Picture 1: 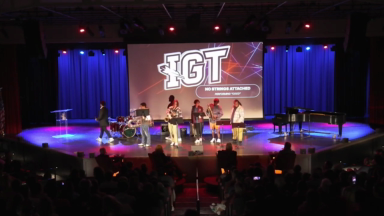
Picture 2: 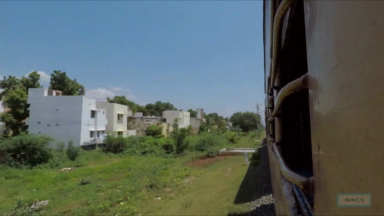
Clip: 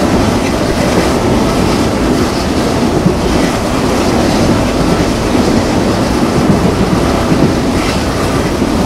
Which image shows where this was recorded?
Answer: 2